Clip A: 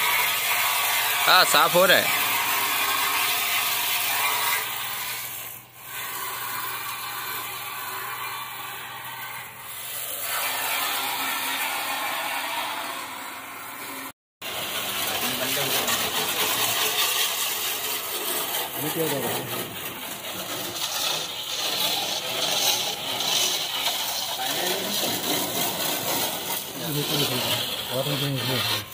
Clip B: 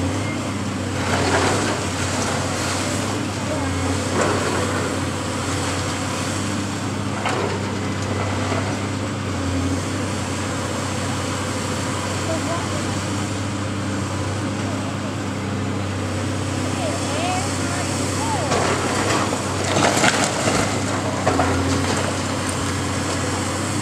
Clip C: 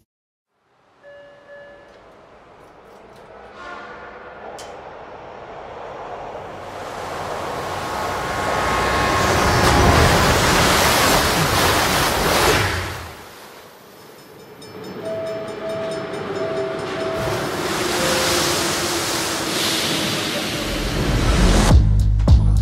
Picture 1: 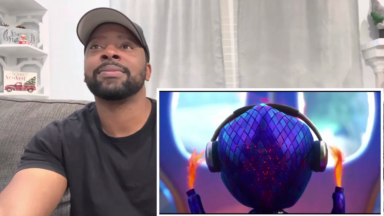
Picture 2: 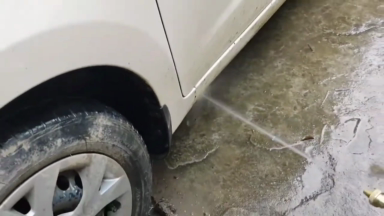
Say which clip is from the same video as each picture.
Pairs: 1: C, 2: A